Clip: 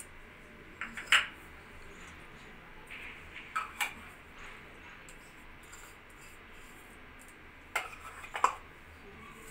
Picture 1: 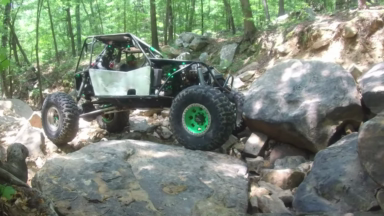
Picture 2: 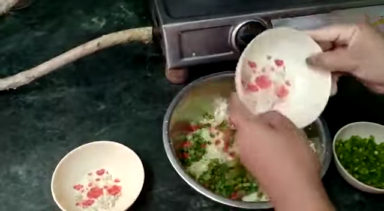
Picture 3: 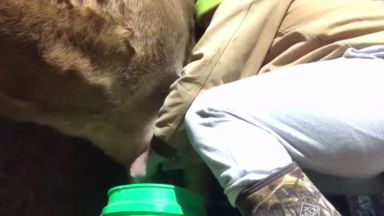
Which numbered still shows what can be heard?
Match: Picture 2